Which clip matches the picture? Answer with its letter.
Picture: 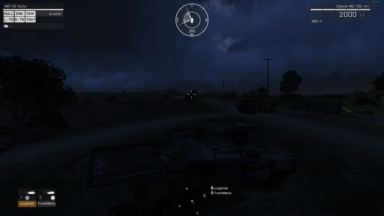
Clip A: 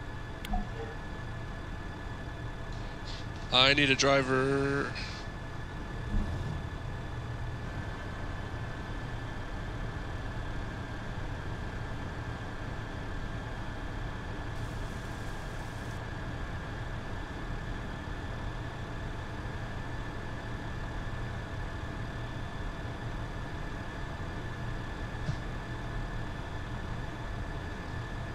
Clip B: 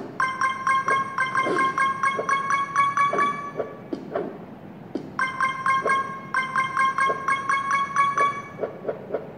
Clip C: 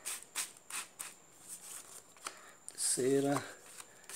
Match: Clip A